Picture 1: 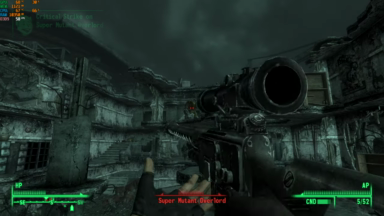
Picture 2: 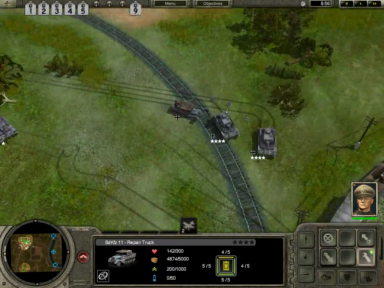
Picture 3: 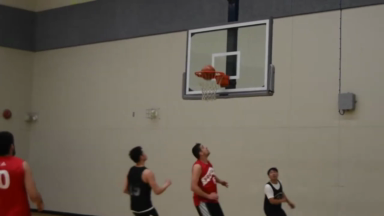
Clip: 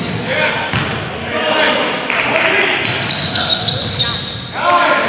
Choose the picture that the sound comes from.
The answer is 3